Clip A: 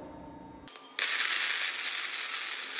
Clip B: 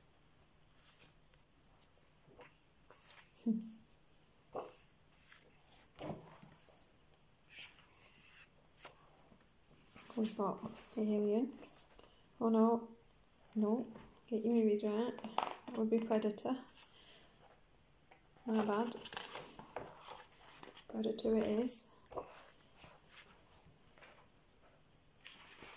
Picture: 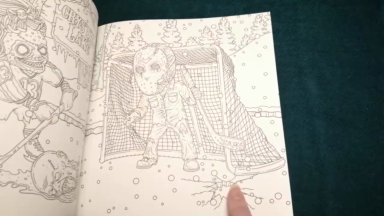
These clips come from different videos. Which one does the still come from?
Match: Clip B